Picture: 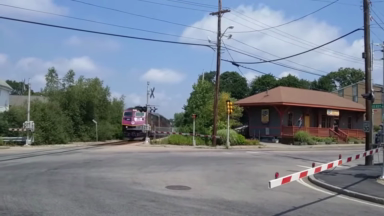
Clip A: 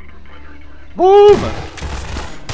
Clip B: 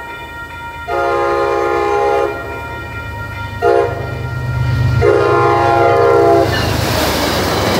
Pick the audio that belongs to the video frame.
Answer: B